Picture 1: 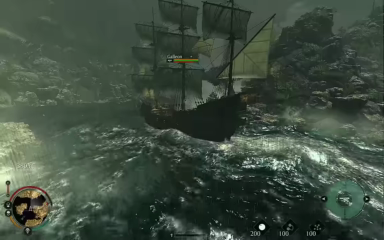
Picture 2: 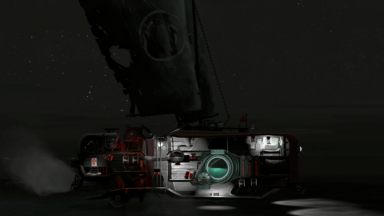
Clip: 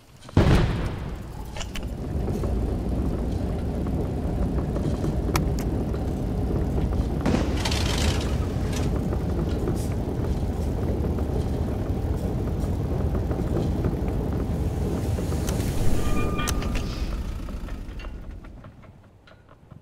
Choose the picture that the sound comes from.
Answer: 2